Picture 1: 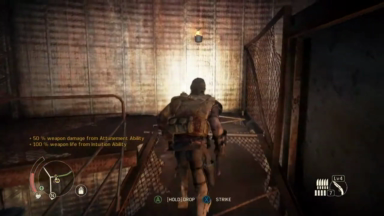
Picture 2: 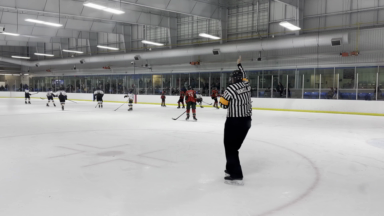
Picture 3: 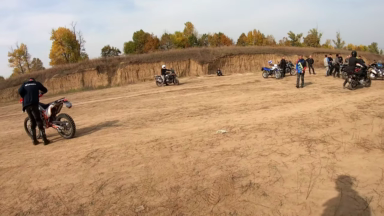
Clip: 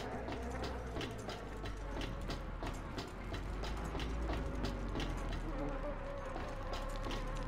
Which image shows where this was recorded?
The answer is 1